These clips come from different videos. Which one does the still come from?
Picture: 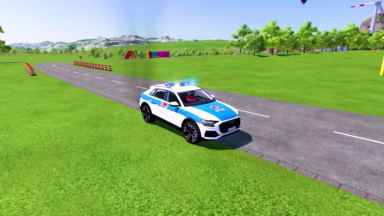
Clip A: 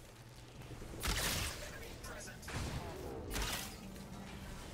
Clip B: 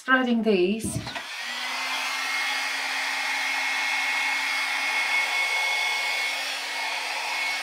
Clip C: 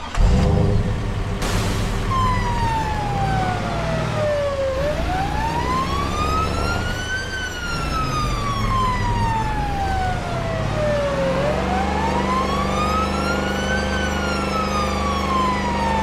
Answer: C